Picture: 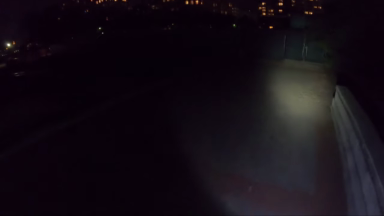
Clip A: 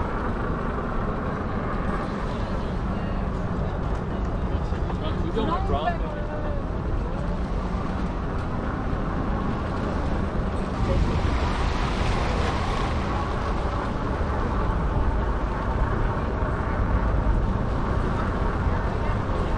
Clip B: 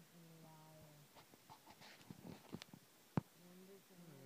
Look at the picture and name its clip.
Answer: A